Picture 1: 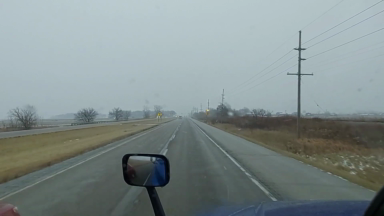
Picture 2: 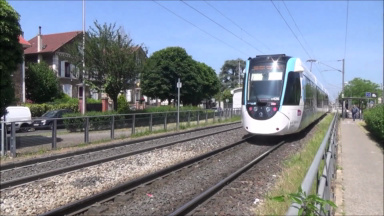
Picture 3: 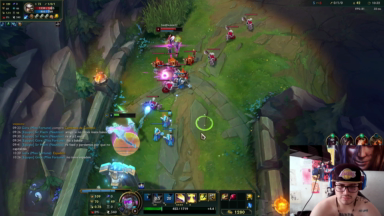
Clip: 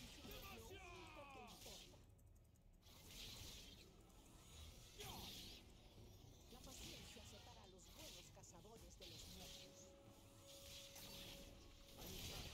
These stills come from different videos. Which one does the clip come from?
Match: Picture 3